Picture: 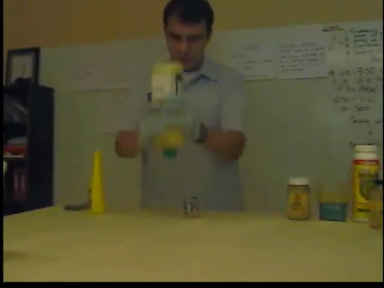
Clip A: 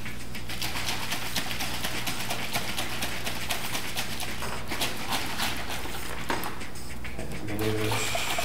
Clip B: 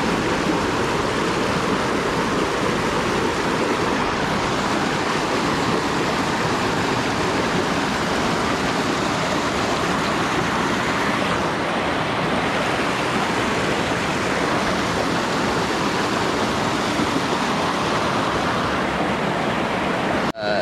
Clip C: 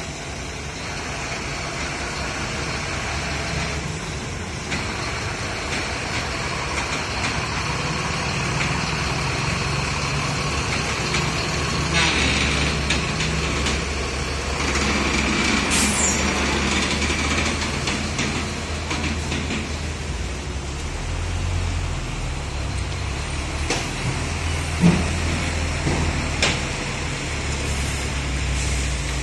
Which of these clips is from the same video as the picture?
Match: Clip A